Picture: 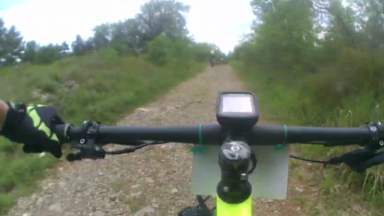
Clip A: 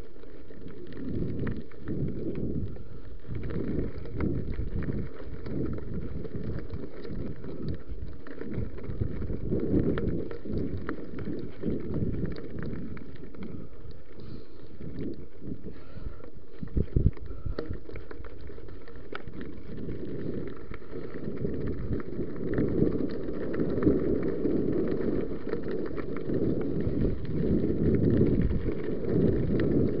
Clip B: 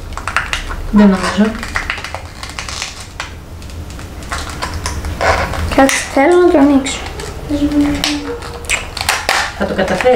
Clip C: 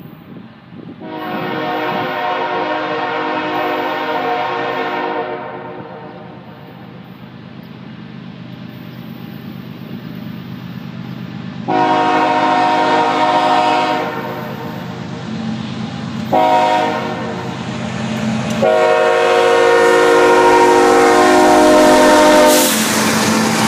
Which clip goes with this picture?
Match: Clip A